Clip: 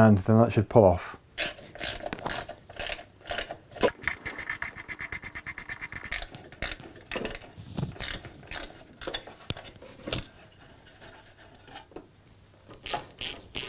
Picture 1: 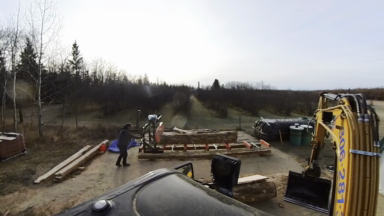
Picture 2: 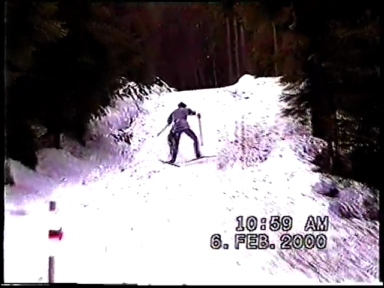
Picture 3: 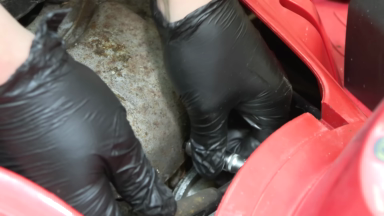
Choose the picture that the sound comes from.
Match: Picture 3